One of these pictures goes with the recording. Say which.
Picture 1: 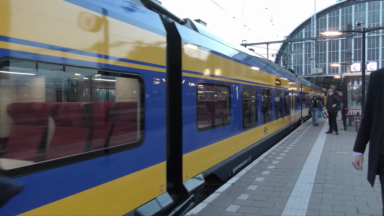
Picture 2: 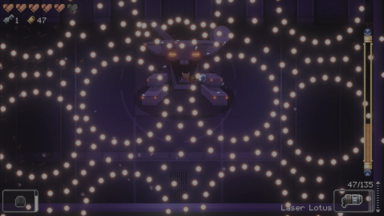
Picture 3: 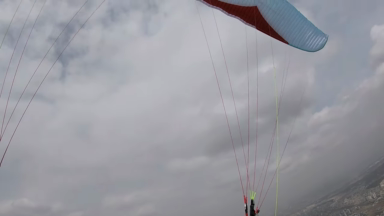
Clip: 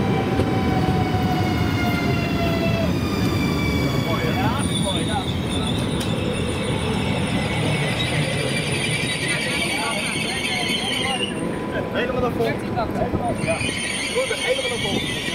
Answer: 1